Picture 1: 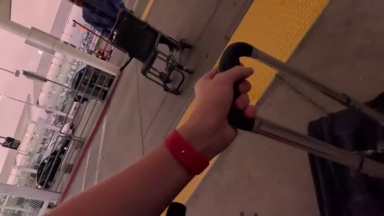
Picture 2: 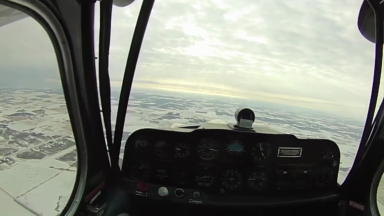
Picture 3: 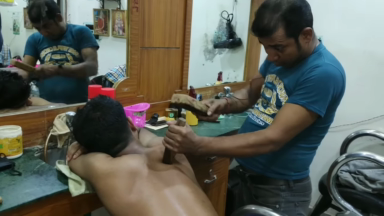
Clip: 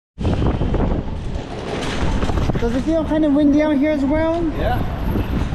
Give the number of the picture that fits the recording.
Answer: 1